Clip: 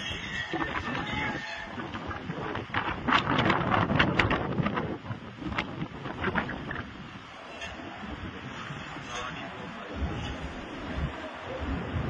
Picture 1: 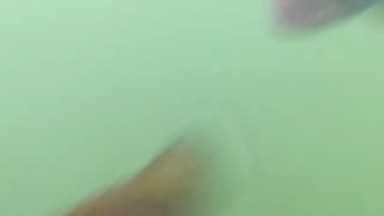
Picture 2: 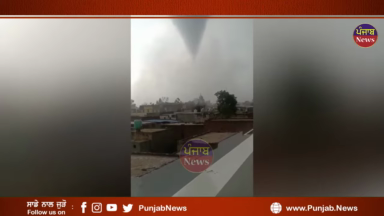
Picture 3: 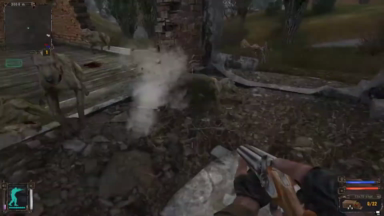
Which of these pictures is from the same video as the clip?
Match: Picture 2